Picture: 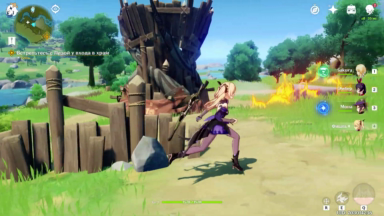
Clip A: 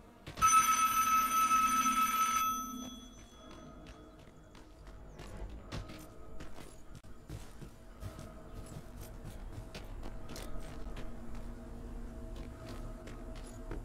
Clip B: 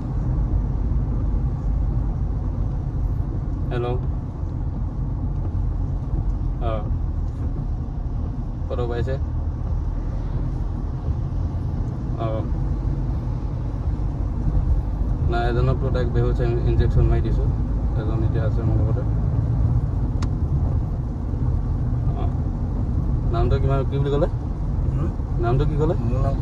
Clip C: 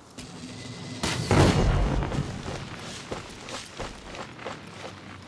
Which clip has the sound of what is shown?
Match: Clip C